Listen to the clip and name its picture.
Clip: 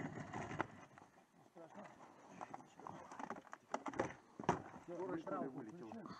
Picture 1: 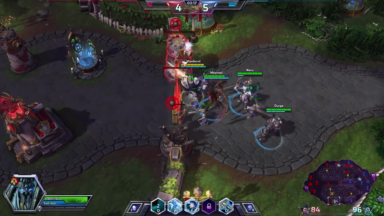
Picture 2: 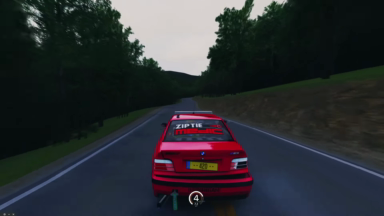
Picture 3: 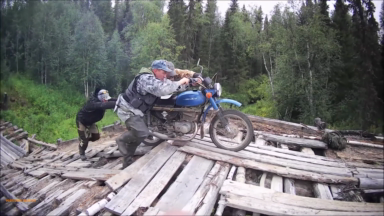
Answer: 3